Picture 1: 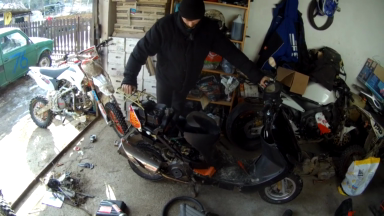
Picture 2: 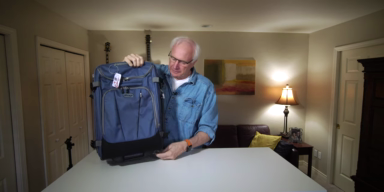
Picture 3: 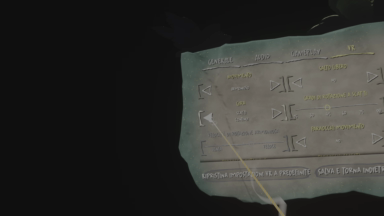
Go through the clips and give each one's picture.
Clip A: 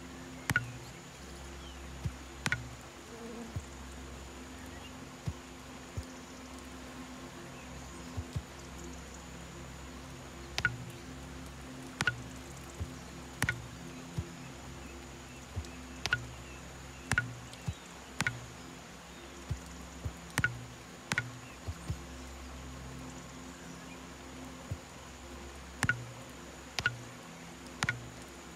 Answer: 3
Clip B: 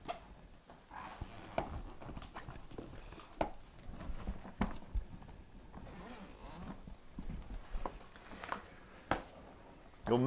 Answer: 2